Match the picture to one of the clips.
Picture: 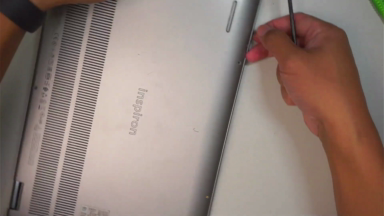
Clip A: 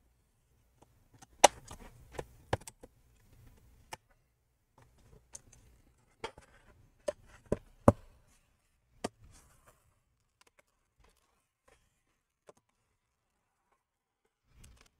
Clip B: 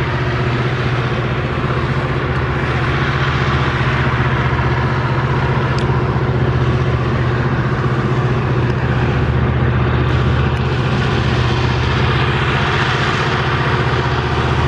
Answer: A